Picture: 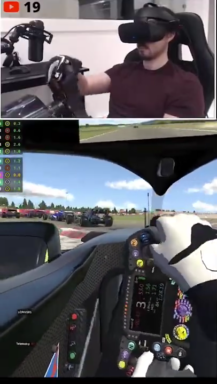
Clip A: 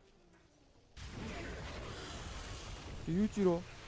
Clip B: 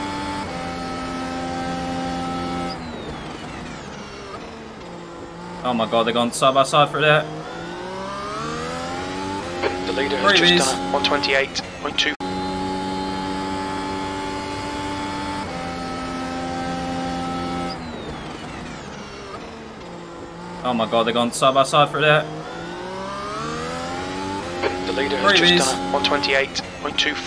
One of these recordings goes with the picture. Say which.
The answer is B